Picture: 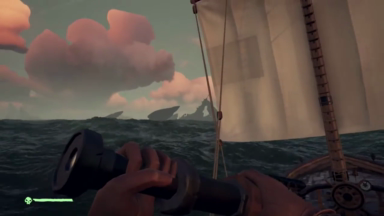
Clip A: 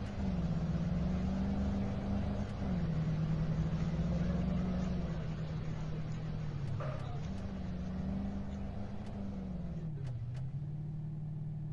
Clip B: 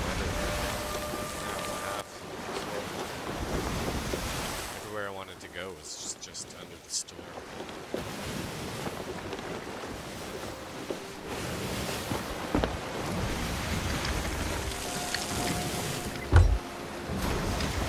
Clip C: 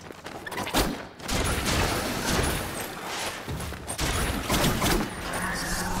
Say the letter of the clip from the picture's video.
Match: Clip B